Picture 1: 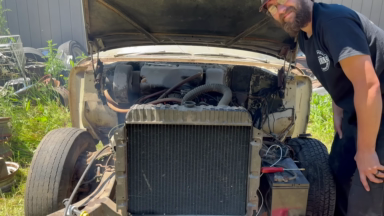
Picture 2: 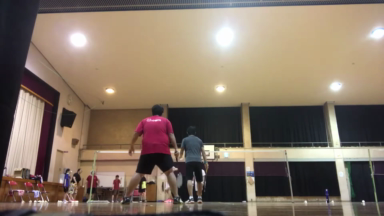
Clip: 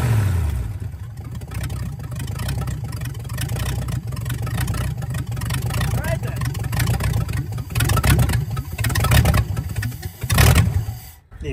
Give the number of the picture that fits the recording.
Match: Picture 1